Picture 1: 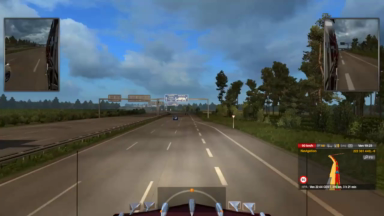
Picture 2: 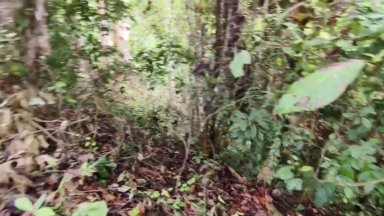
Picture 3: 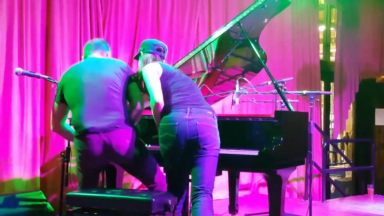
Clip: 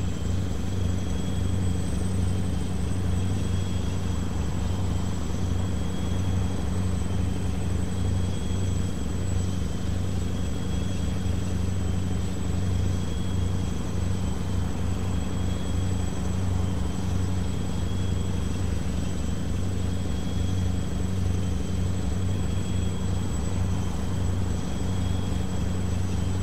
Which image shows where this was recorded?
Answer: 1